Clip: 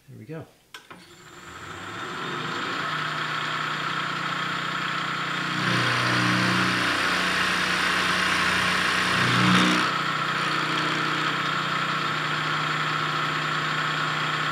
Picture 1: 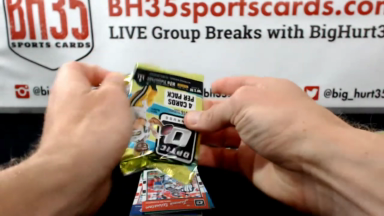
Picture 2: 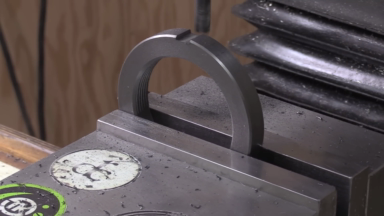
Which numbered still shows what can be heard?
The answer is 2